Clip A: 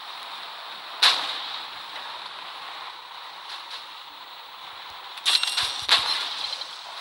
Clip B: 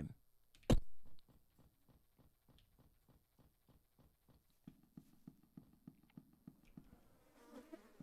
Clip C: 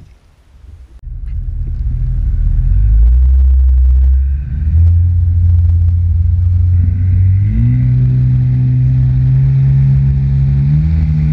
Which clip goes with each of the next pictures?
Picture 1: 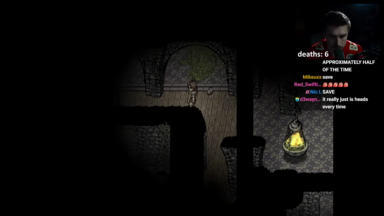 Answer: B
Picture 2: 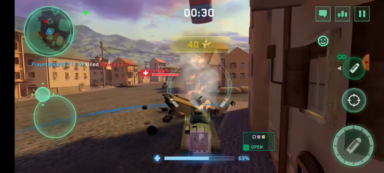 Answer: A